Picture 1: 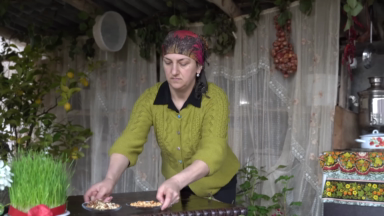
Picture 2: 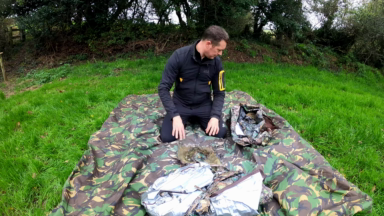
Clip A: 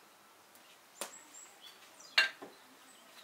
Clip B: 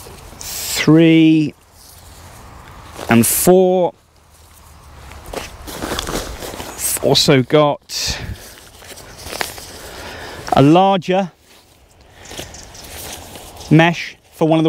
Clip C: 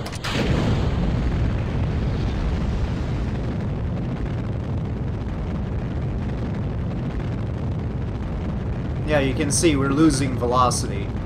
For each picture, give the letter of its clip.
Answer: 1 A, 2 B